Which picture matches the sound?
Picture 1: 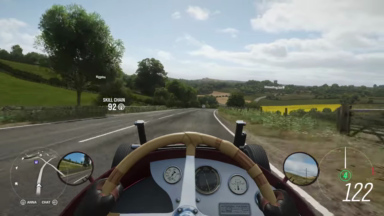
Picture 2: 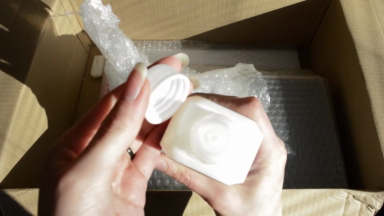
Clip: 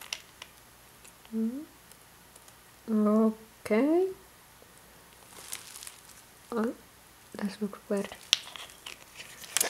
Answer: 2